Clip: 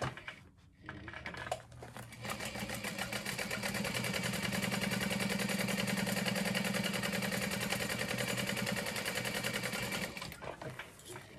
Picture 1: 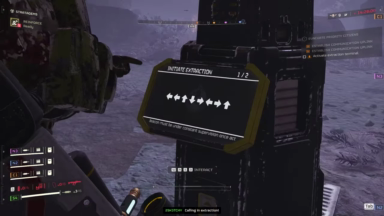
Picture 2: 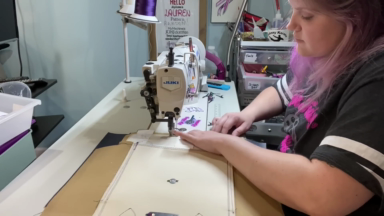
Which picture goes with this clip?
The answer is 2